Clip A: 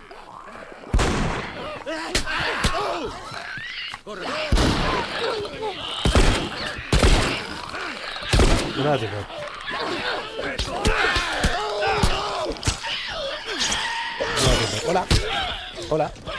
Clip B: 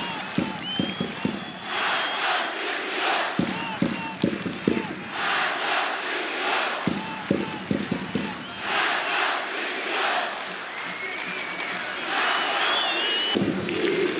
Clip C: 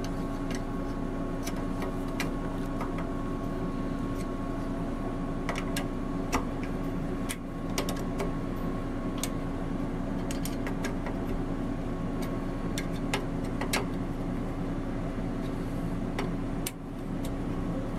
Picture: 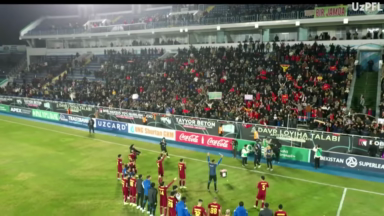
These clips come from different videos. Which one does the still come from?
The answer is B